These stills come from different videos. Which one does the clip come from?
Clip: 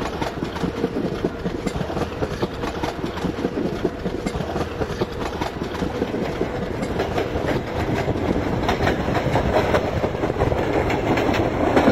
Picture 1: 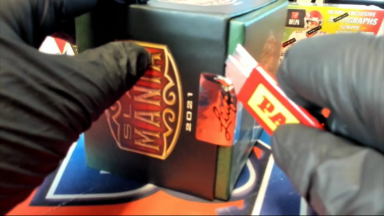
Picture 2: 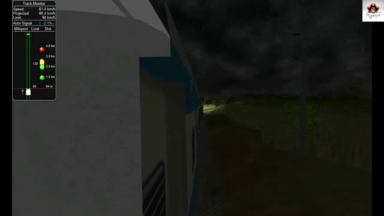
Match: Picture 2